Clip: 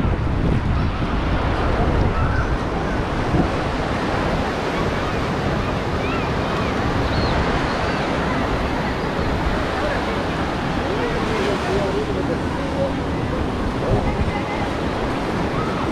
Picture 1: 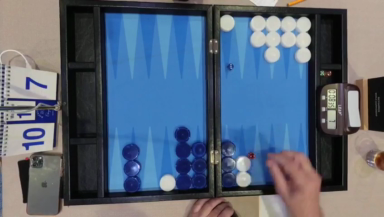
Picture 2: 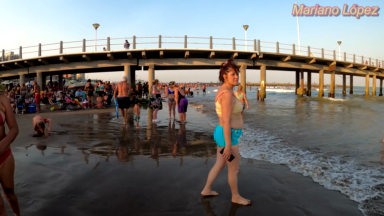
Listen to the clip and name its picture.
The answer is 2